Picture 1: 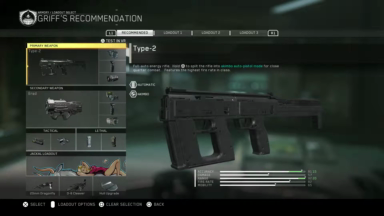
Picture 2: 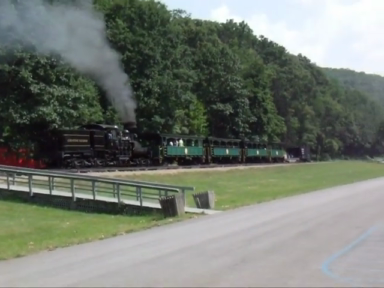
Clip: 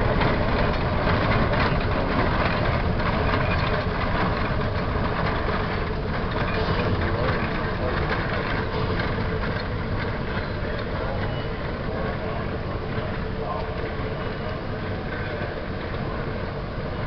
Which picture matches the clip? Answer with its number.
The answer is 2